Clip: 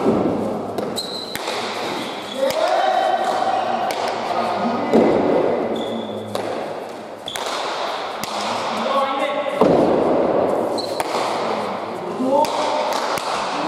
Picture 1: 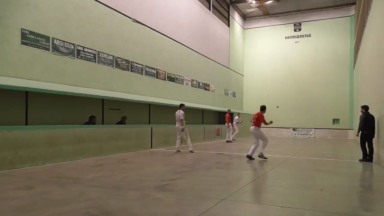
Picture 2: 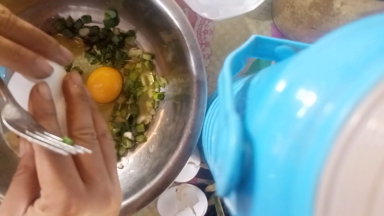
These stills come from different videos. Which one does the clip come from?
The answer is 1